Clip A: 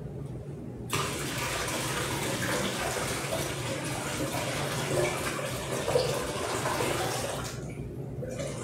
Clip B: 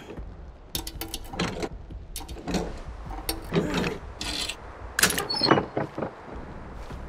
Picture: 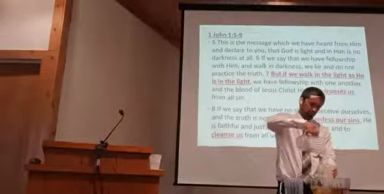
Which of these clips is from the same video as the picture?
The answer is A